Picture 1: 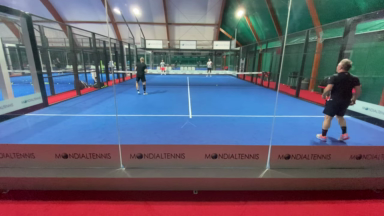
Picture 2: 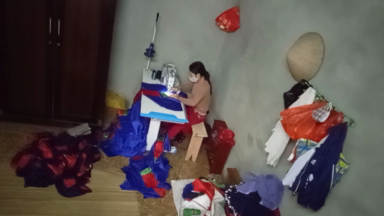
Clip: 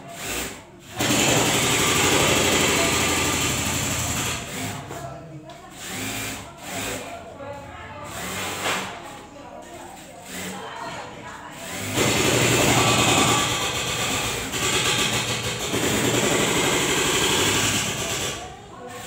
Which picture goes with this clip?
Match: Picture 2